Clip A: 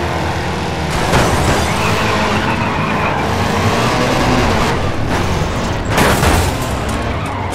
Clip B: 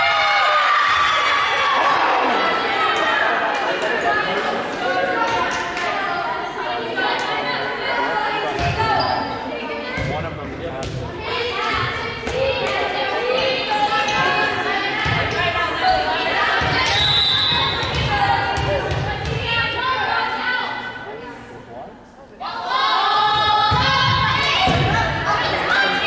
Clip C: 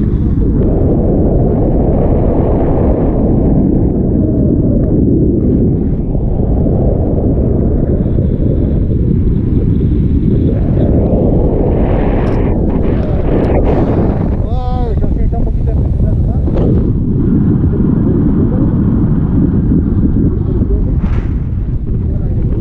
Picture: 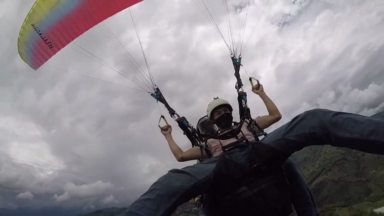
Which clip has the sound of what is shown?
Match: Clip C